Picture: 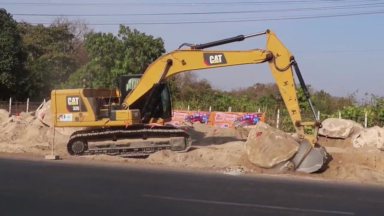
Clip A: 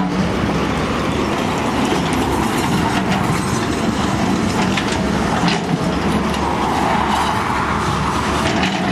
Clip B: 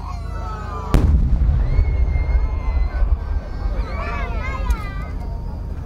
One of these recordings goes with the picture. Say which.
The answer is A